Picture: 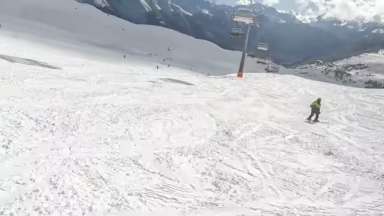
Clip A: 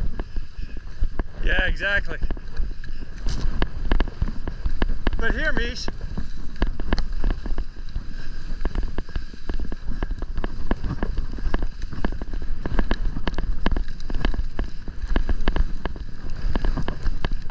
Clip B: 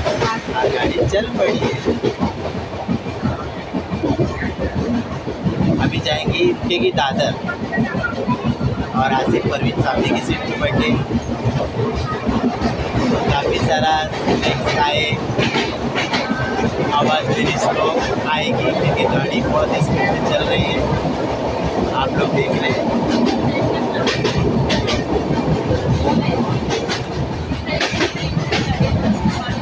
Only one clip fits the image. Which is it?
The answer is A